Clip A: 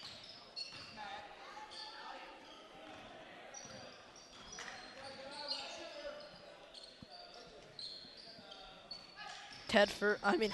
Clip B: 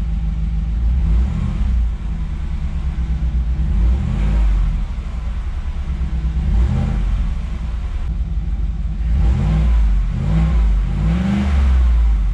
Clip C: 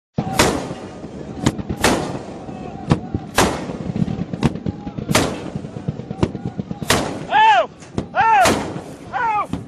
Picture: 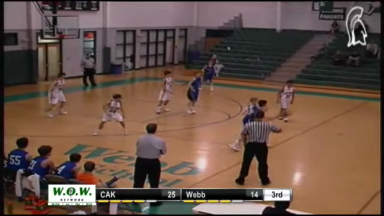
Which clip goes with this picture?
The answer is A